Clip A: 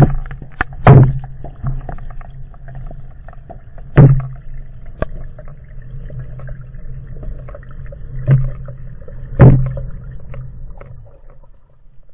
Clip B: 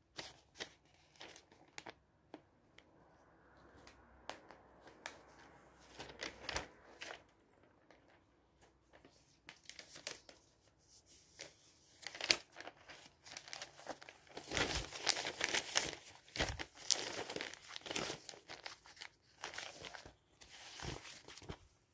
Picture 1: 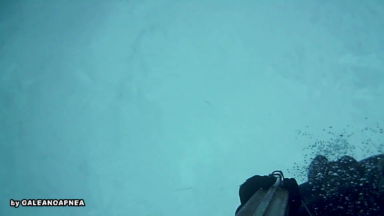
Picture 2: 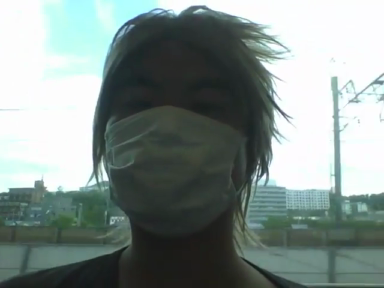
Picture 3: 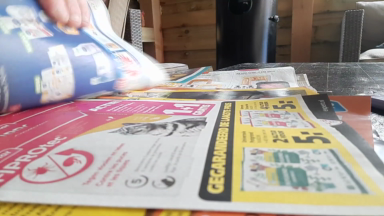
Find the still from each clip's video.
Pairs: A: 1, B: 3